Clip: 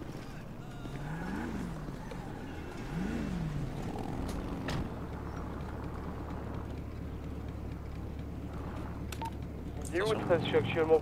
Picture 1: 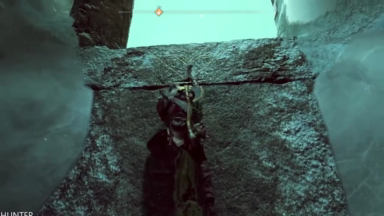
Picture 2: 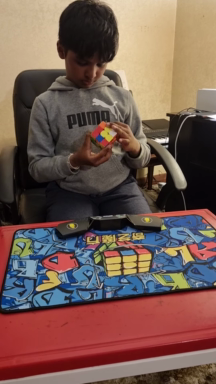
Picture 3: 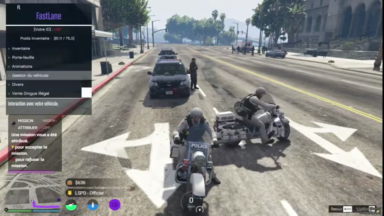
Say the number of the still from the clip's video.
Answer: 3